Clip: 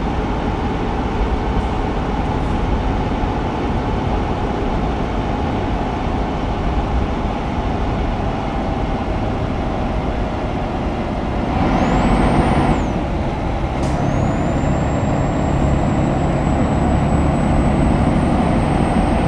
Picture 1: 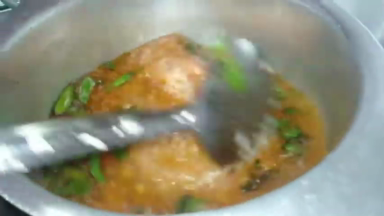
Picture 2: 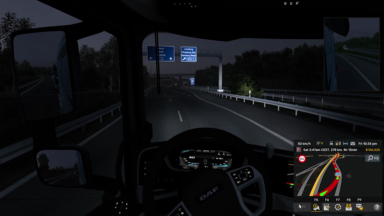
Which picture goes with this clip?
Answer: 2